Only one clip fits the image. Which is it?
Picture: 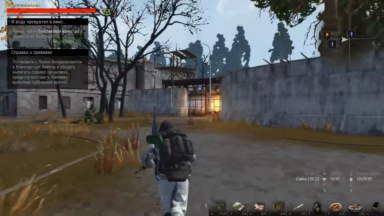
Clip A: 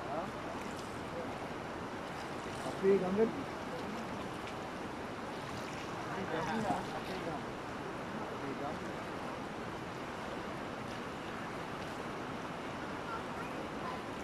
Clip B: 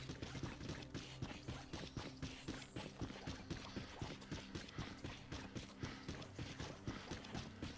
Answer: B